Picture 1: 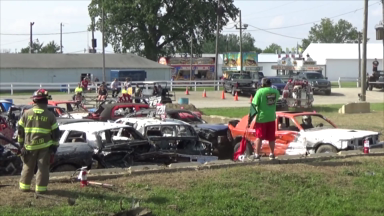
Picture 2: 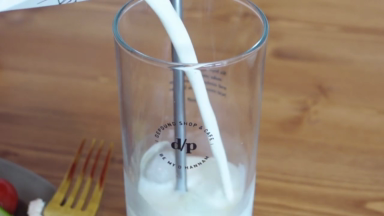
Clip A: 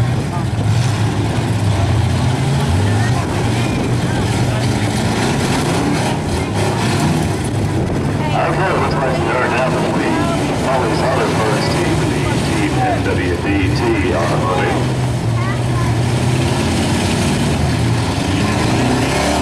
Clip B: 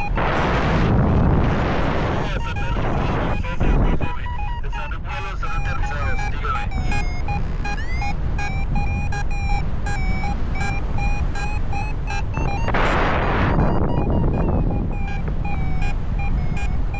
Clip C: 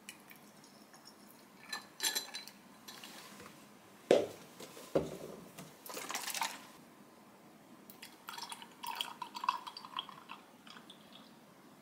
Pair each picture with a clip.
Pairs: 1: A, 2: C